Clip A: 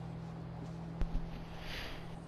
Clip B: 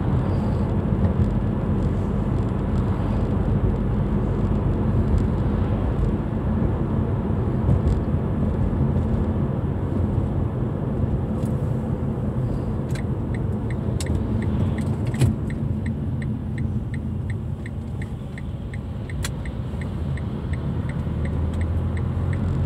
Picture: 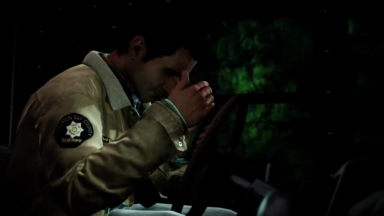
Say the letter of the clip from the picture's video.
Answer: A